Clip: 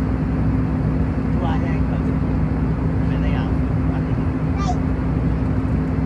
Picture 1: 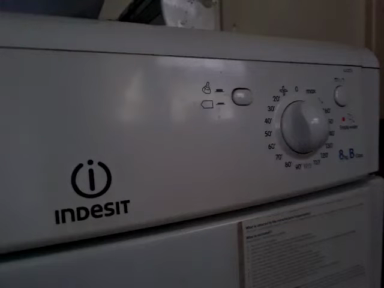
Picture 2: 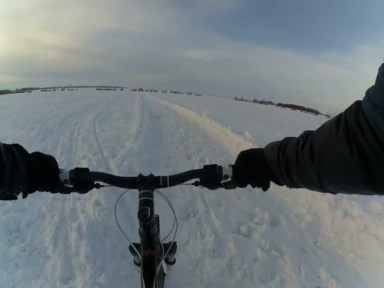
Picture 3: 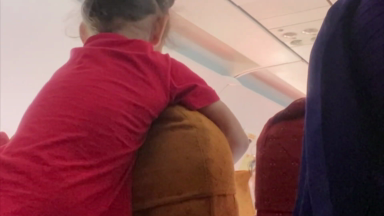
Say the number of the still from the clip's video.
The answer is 3